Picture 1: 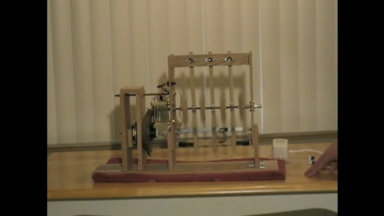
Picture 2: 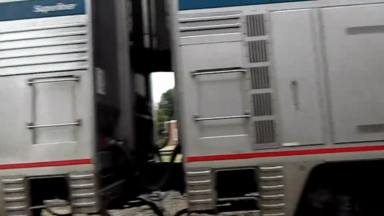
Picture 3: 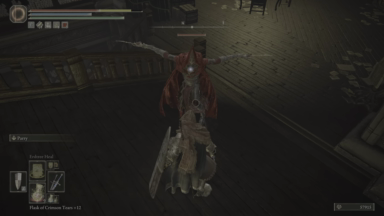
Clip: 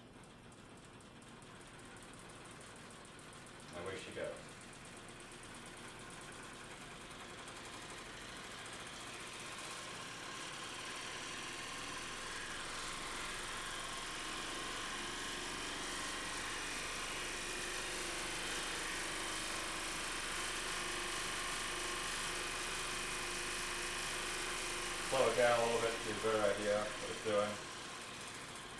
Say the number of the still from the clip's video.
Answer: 1